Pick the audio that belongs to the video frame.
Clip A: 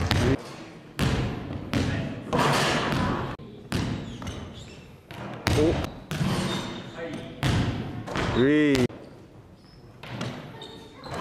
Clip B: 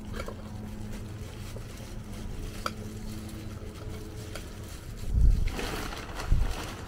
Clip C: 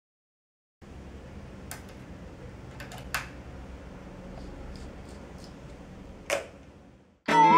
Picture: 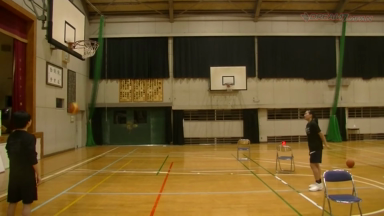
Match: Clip A